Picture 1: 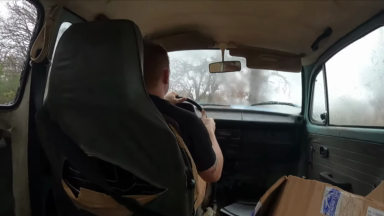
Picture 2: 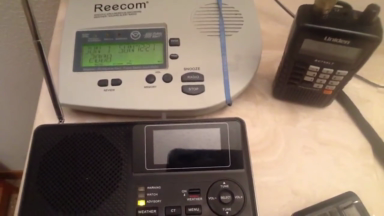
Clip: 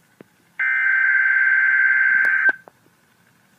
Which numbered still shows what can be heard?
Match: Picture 2